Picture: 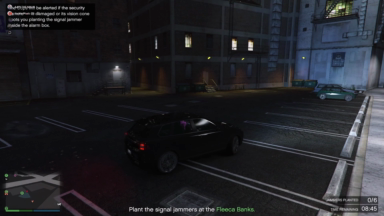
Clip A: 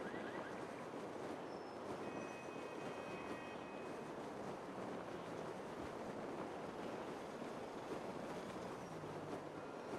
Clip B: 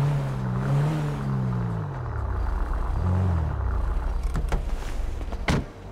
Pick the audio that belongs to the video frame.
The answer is B